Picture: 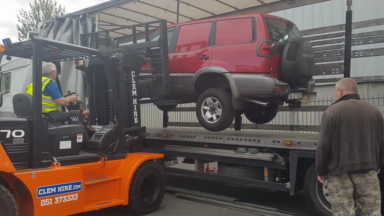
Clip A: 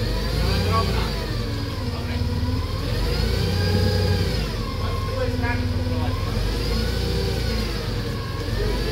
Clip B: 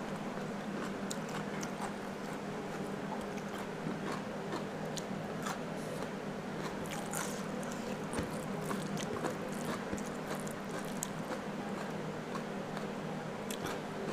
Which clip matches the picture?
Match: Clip A